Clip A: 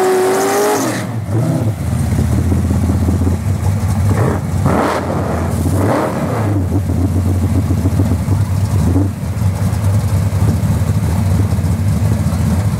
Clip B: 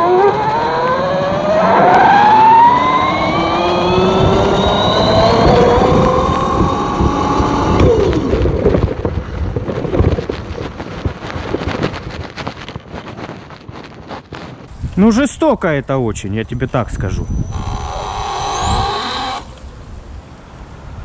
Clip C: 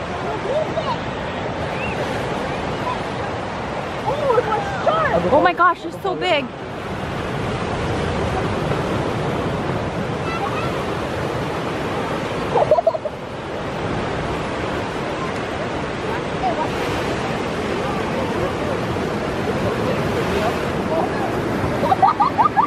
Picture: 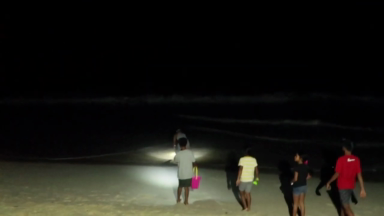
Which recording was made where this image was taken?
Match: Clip C